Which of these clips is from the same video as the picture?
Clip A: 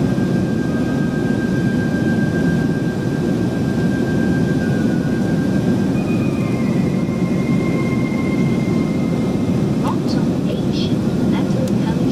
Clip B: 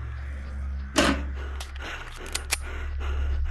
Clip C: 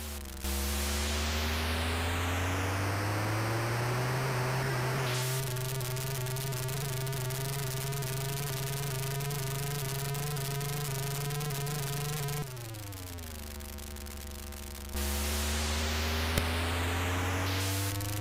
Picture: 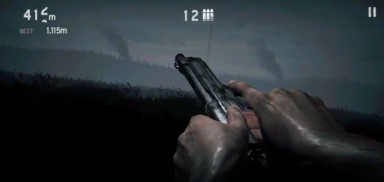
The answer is B